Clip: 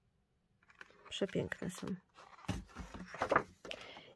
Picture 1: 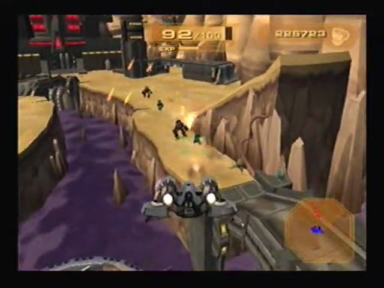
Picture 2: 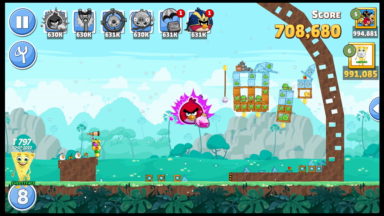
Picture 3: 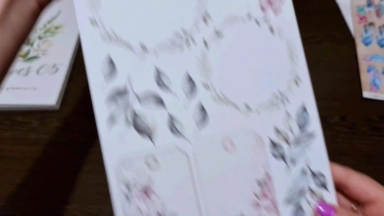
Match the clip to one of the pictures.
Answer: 3